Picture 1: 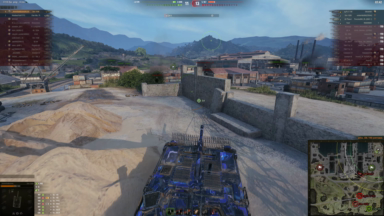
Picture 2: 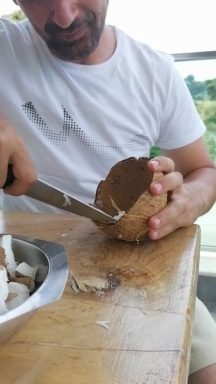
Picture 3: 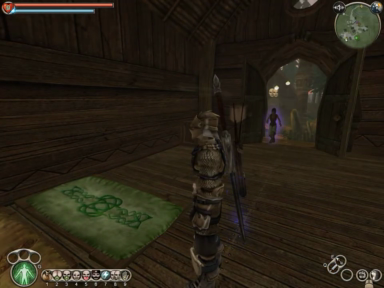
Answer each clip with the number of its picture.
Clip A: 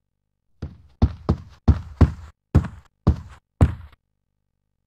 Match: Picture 3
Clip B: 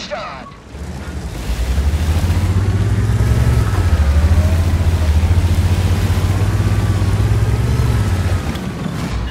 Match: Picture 1